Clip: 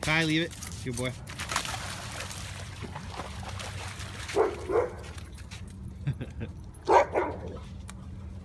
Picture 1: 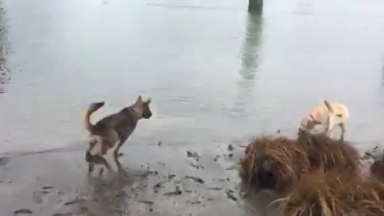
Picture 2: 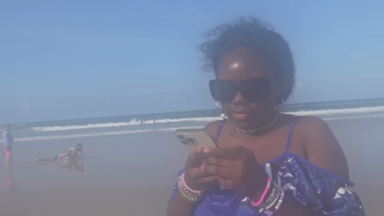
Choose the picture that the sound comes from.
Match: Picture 1